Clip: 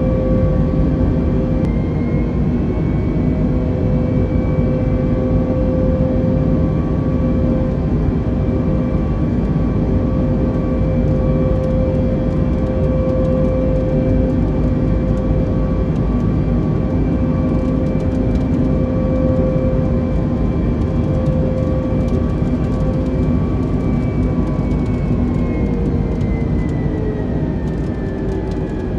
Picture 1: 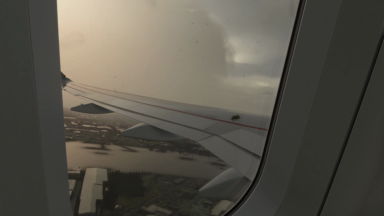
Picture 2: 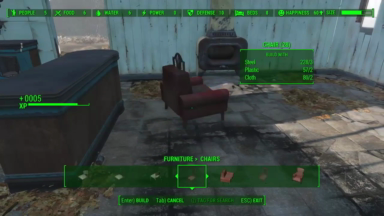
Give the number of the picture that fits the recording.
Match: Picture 1